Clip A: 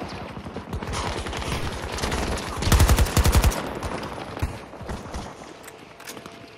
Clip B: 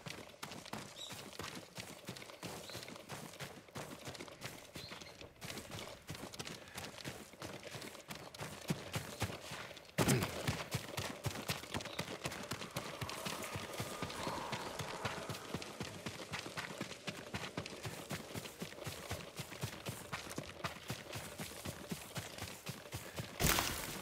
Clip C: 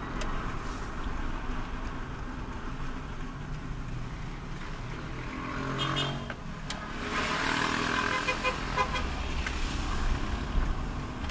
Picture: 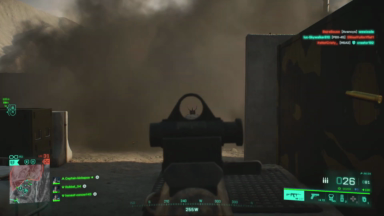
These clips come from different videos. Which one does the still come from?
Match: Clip A